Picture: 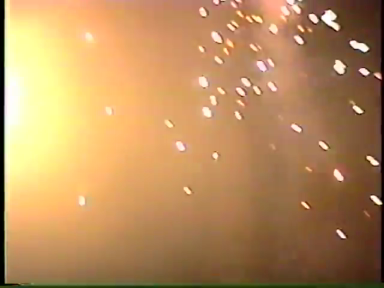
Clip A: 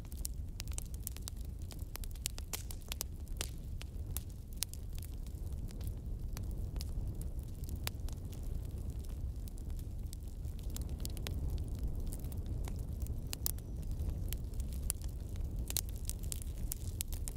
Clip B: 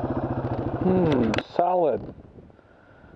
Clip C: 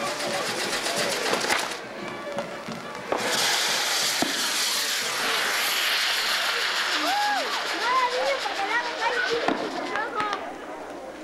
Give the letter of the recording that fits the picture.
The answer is C